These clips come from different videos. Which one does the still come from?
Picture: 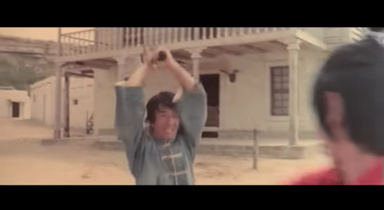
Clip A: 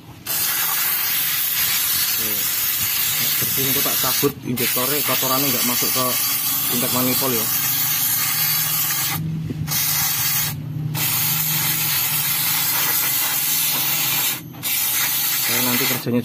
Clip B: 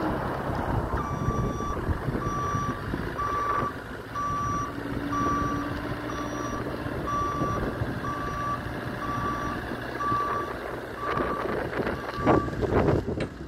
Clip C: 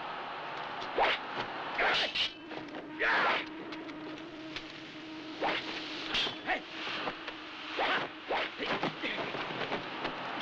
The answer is C